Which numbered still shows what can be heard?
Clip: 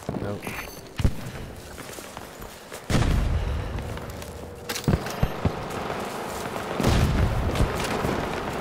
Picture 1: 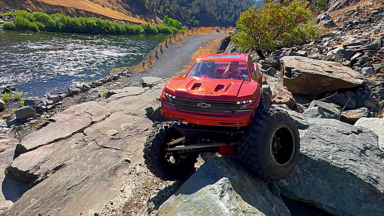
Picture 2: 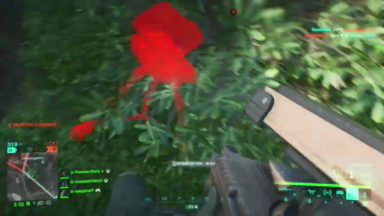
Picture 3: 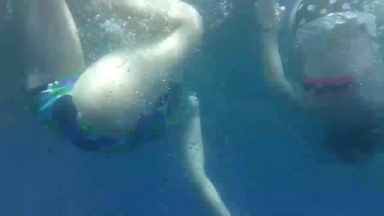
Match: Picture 2